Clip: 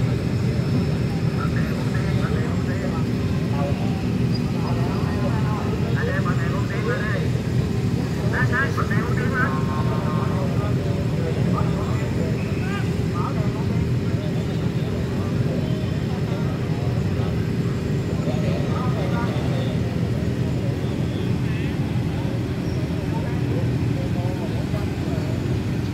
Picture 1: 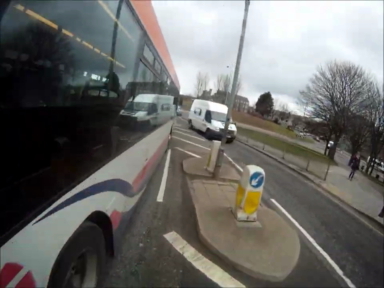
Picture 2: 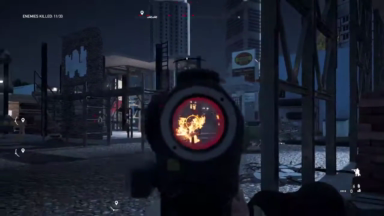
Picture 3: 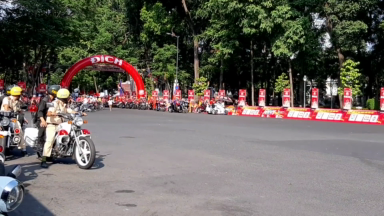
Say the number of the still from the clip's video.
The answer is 3